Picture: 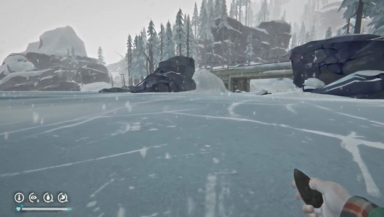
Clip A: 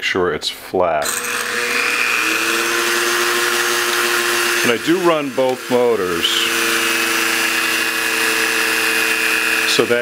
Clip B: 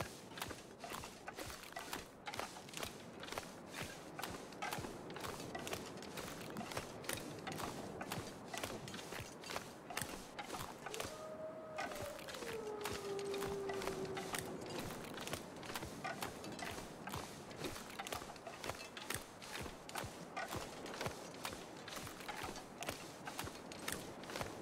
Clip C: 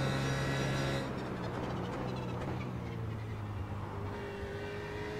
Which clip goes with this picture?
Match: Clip B